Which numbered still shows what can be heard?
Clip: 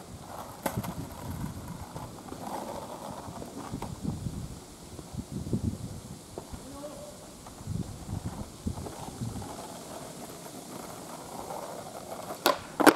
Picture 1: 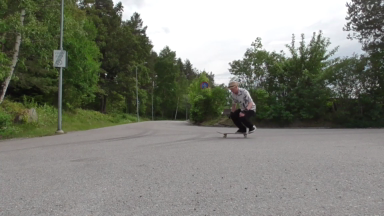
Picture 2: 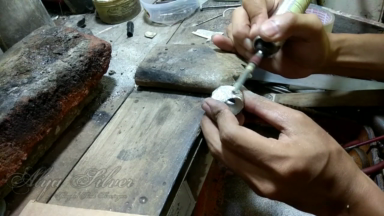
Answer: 1